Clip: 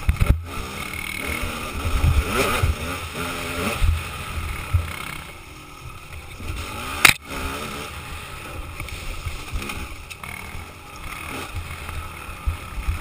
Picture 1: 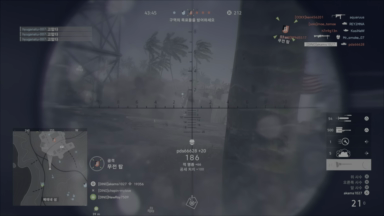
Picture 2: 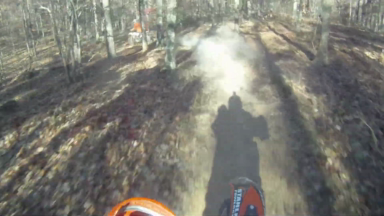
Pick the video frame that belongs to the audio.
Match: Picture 2